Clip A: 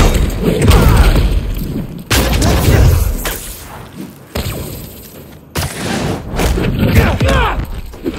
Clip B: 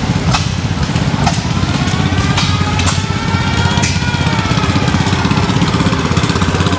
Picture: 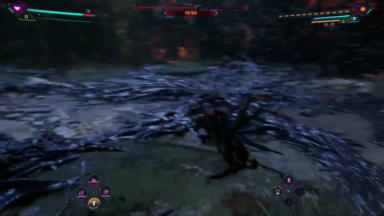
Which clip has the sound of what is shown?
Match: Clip A